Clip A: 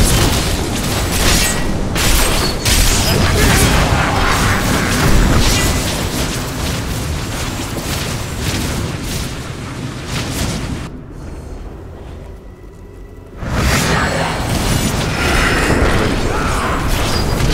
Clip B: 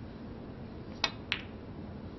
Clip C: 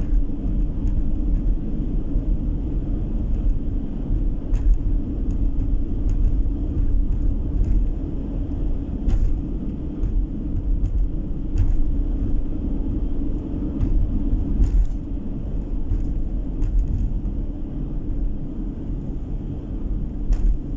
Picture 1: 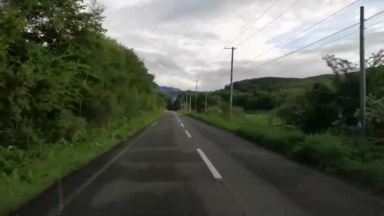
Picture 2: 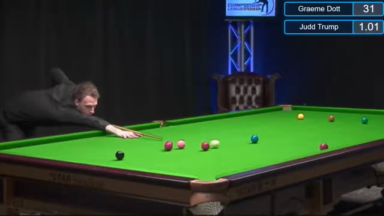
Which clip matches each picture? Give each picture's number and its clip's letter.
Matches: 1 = C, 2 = B